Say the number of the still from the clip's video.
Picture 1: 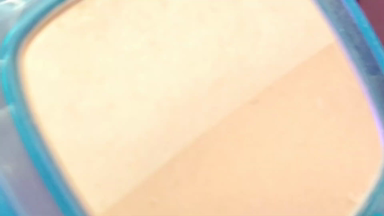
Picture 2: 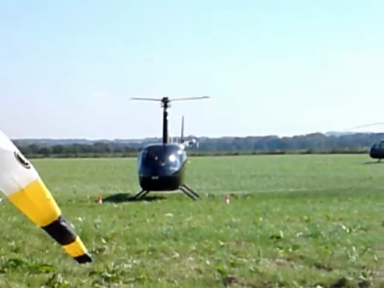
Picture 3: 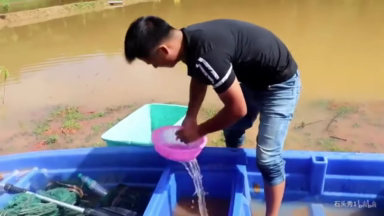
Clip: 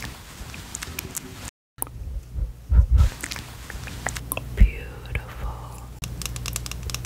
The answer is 1